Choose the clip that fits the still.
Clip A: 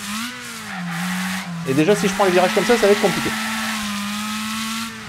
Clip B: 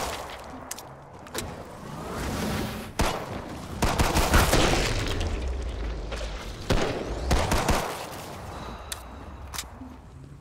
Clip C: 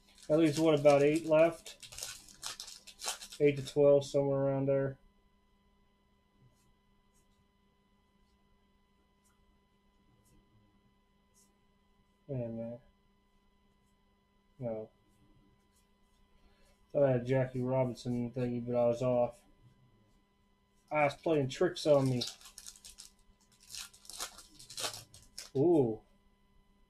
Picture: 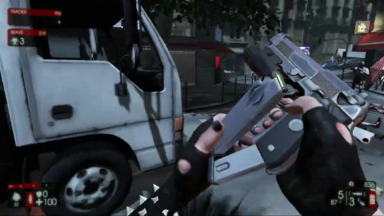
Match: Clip B